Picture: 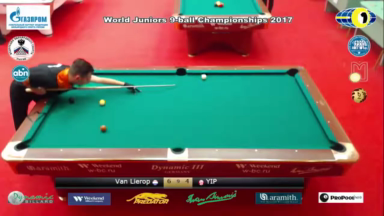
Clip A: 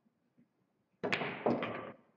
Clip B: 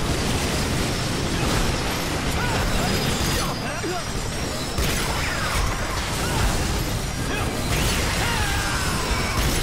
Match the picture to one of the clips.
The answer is A